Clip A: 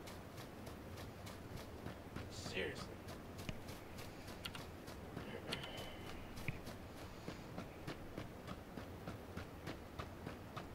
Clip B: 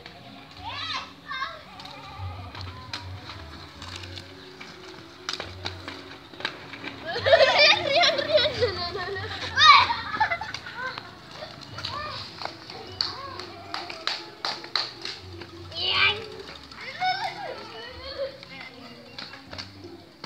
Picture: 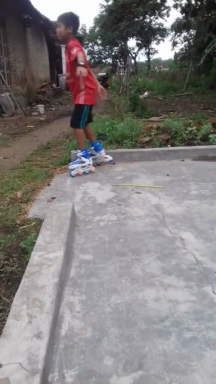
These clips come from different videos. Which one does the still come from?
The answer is B